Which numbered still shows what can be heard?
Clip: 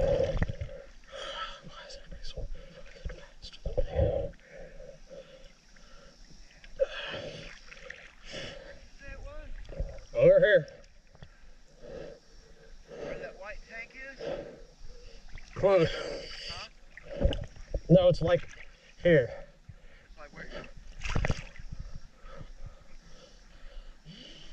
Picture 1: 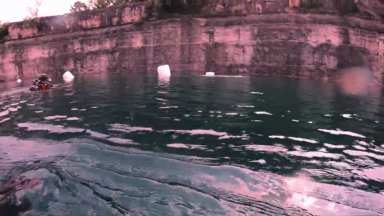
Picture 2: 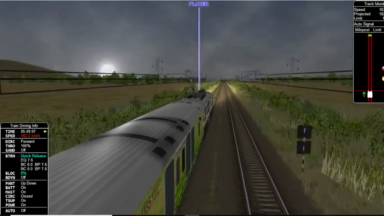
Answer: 1